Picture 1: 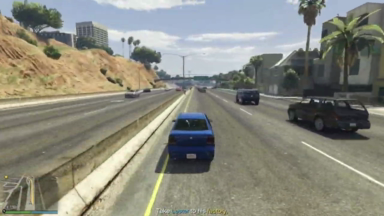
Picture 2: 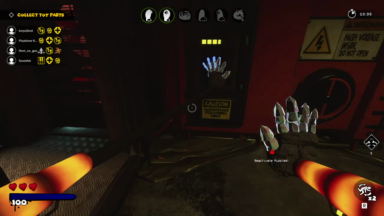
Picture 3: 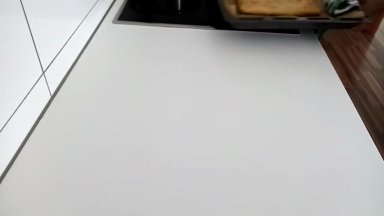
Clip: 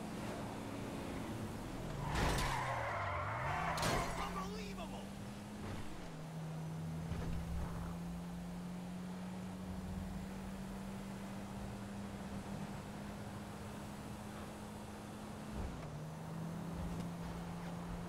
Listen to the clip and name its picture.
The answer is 1